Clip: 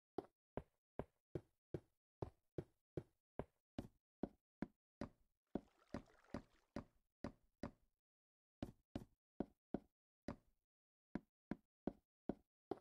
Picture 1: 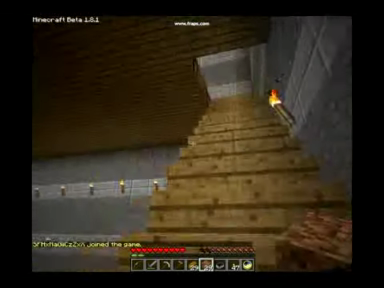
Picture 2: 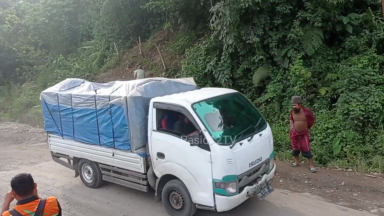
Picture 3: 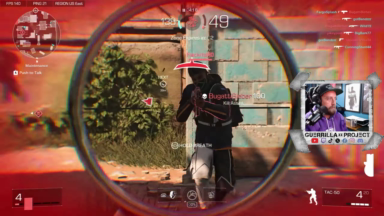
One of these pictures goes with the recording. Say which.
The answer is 1